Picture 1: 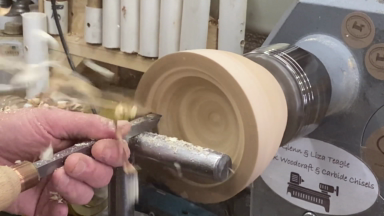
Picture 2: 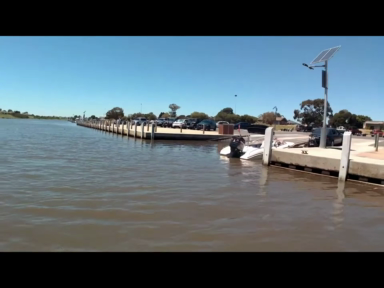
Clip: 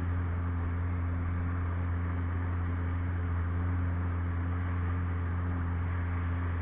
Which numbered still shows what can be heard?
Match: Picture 2